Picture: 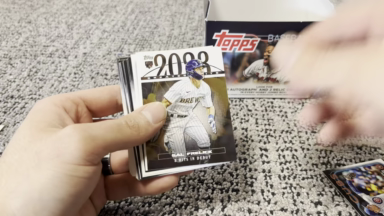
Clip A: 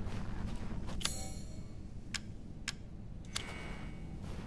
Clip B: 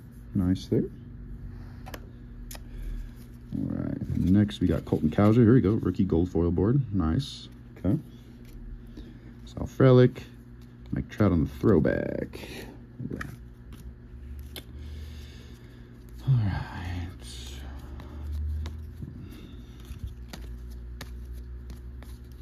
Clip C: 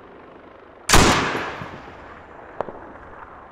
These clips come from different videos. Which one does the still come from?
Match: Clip B